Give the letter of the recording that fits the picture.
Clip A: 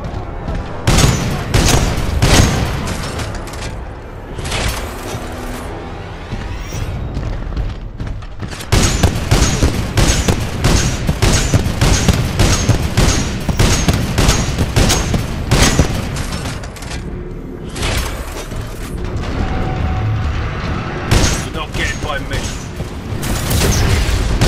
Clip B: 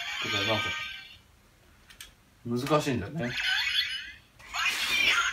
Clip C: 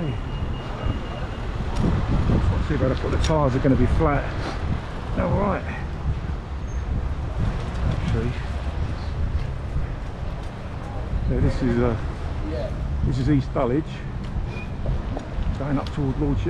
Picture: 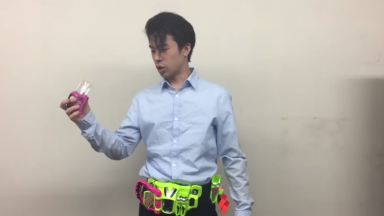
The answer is B